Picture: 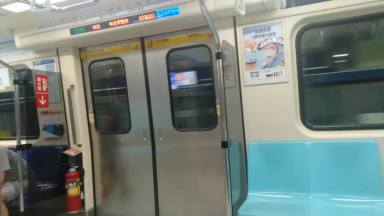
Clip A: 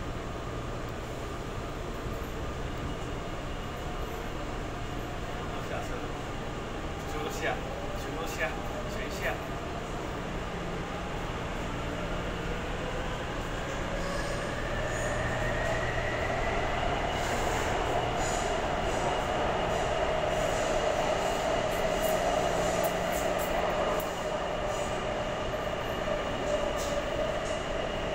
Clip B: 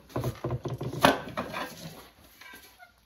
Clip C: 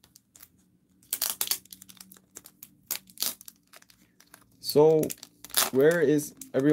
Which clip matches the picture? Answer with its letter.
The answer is A